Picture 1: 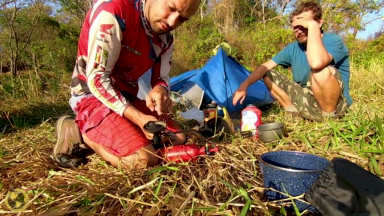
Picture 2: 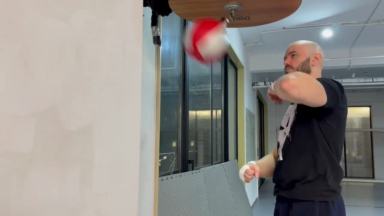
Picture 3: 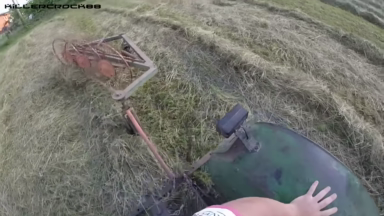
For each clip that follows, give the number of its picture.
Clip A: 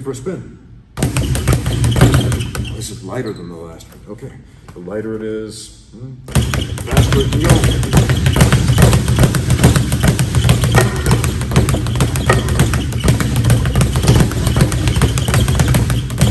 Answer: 2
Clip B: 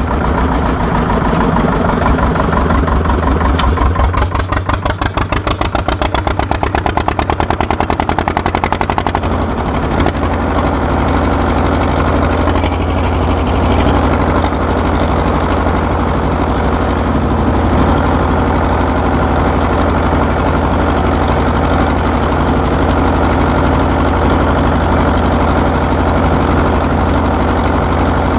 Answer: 3